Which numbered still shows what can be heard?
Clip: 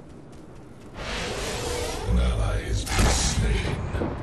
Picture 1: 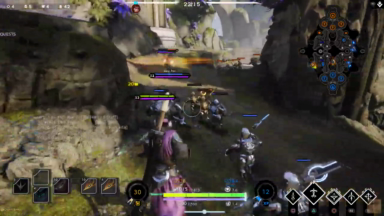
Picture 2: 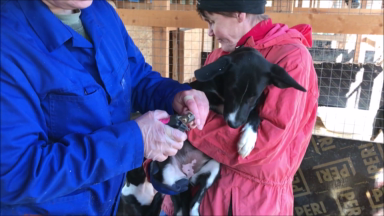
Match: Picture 1